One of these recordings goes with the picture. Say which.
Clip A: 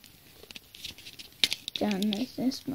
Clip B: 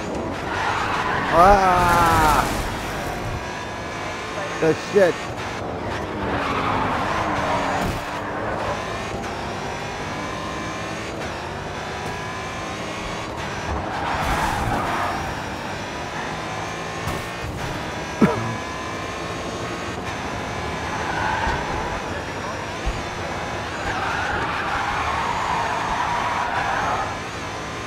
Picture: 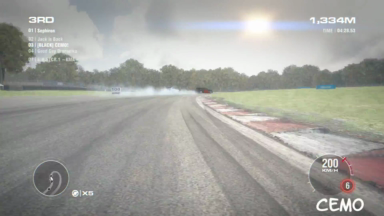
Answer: B